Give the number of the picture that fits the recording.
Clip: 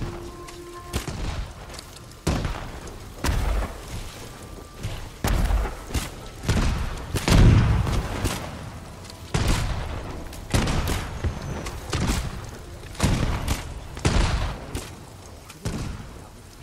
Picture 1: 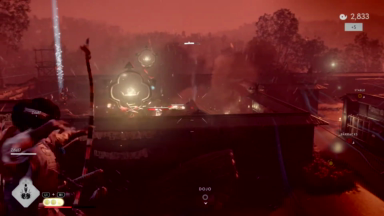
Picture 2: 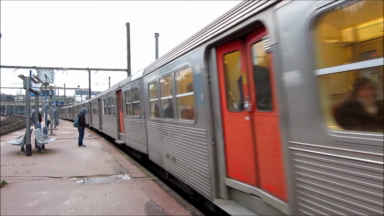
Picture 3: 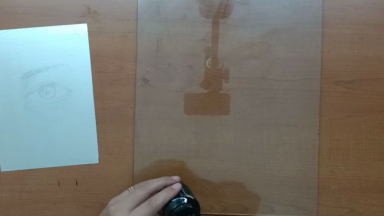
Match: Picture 1